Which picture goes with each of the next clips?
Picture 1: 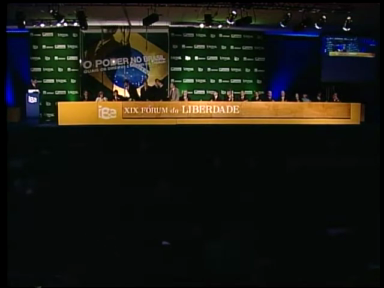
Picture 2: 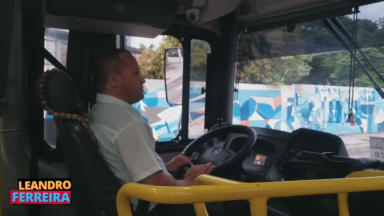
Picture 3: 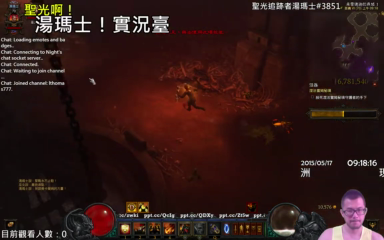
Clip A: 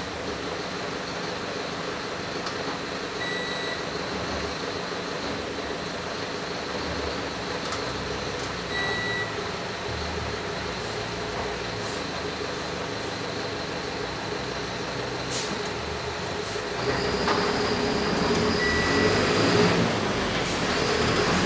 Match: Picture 2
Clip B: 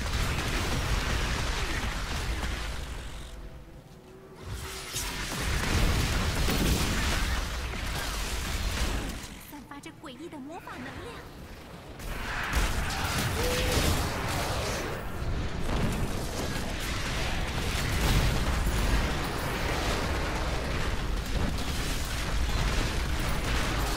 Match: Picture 3